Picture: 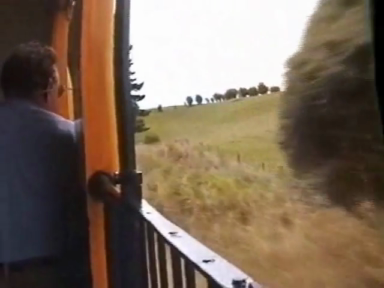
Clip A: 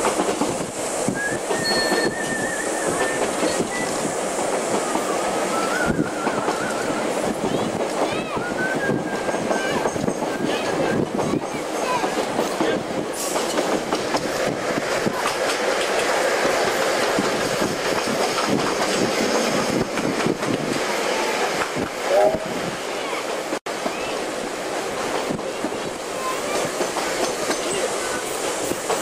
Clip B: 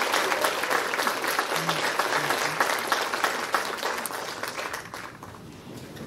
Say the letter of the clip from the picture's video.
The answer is A